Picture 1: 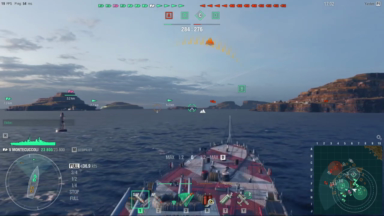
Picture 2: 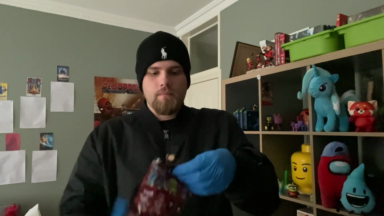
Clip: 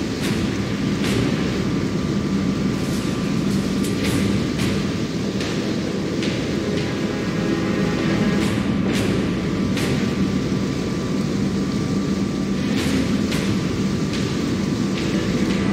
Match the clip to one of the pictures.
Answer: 1